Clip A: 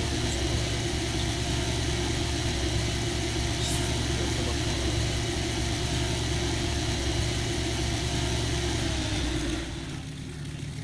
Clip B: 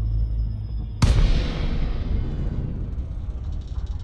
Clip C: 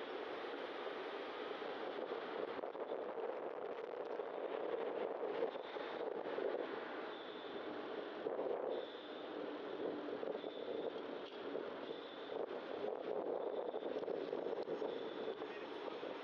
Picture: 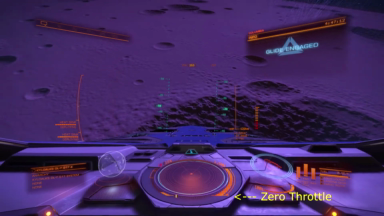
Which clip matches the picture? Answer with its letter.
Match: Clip B